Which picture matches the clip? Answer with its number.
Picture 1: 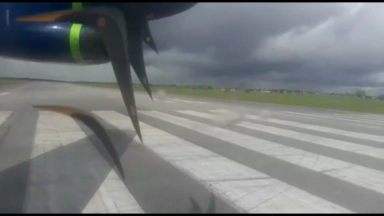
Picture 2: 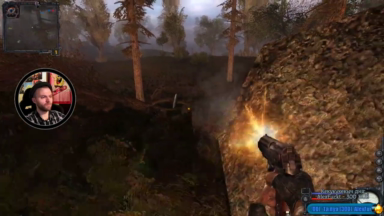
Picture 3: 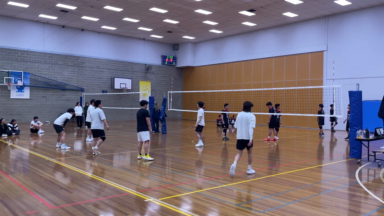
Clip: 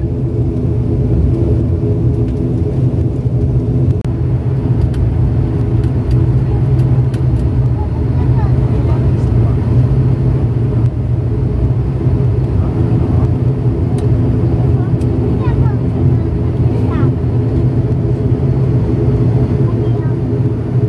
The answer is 1